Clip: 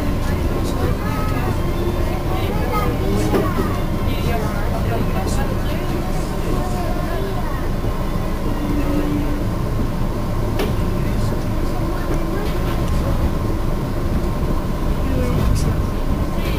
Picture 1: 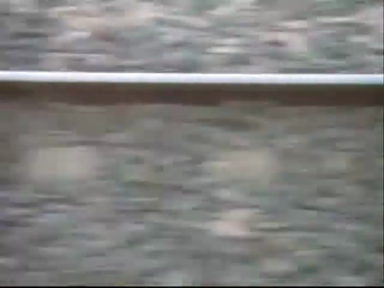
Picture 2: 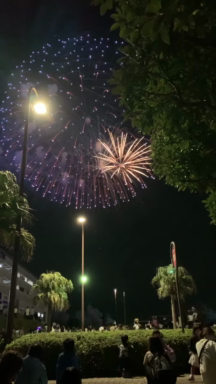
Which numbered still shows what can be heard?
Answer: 1